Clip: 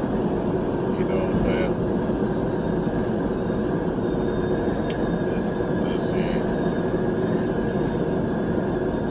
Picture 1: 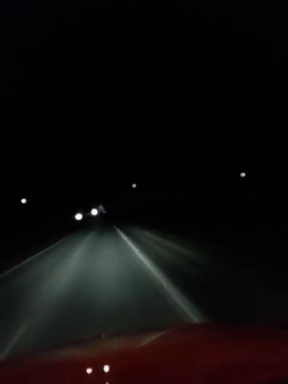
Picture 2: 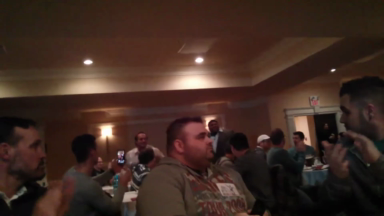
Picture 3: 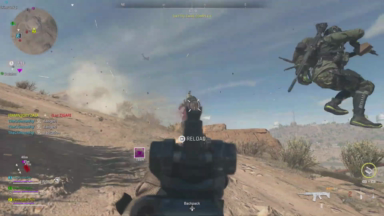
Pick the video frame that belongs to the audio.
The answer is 1